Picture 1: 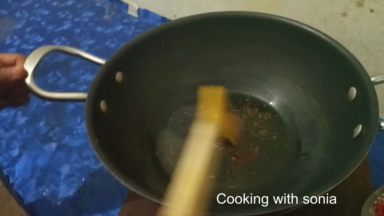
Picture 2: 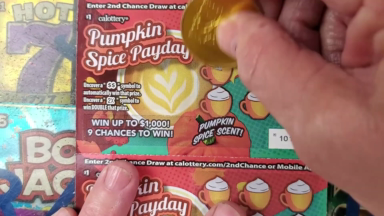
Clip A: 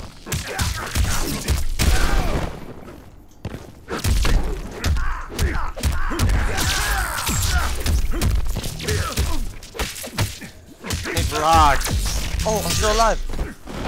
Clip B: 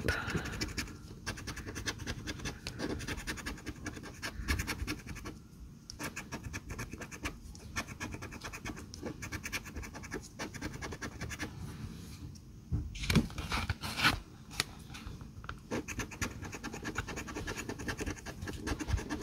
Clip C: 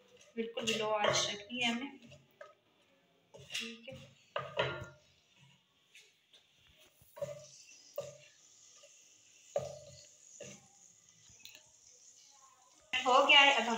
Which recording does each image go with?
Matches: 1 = C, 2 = B